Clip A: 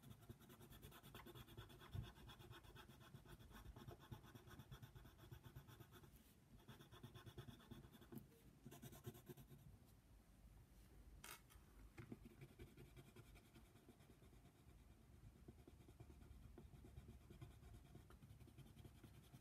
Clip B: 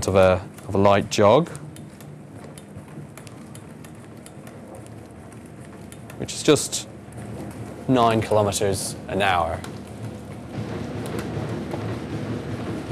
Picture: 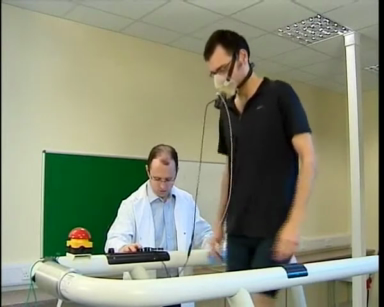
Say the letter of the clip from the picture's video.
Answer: B